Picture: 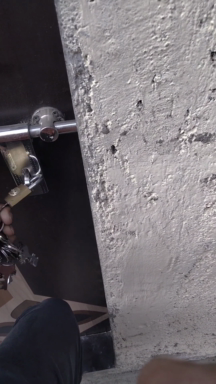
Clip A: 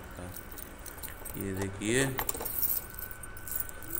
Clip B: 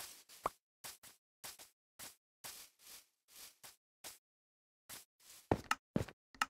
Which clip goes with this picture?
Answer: A